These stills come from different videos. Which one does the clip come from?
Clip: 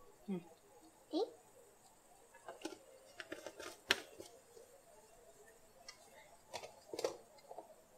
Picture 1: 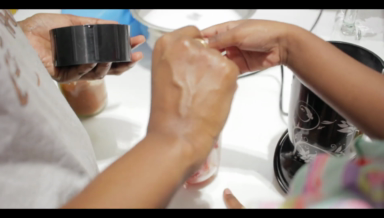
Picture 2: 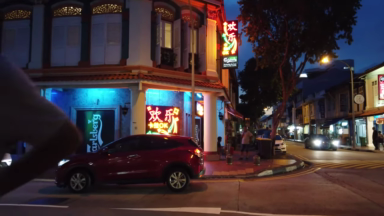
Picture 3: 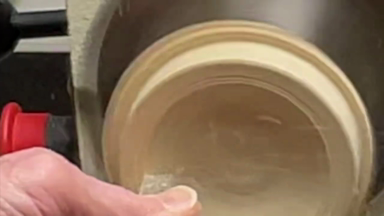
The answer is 1